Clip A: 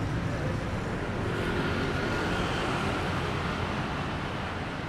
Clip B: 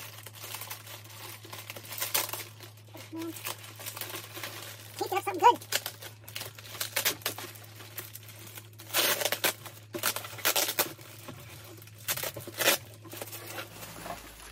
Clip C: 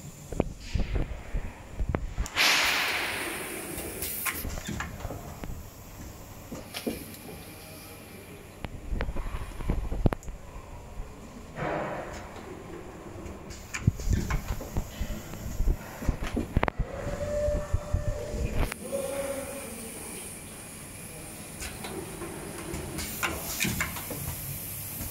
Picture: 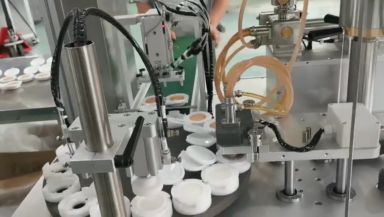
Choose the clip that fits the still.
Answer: C